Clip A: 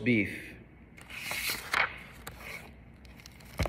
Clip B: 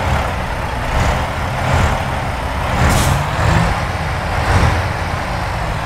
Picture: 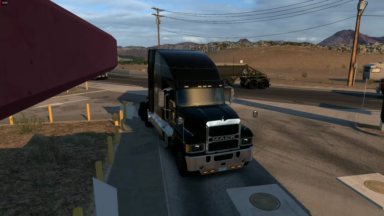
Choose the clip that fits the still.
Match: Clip B